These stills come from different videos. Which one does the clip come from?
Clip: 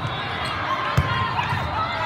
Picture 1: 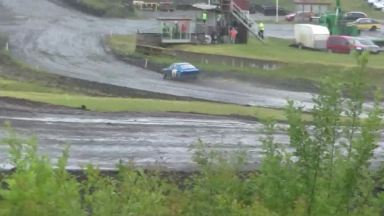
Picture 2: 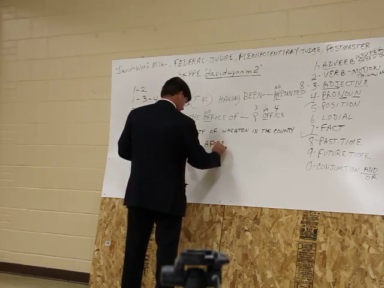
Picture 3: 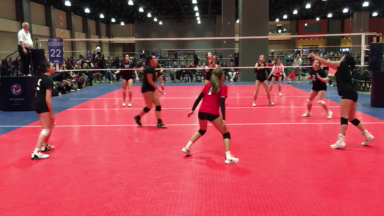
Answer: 3